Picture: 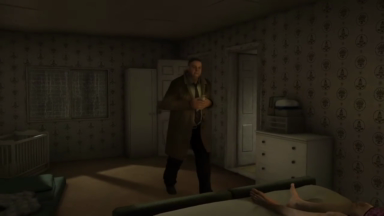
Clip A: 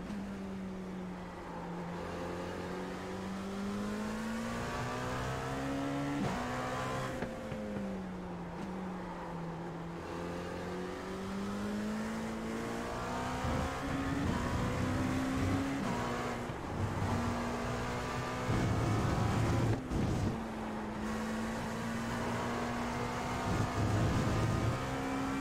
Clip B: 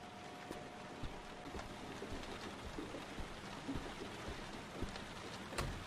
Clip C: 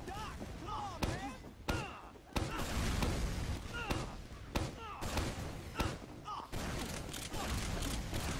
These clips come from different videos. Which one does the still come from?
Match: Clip B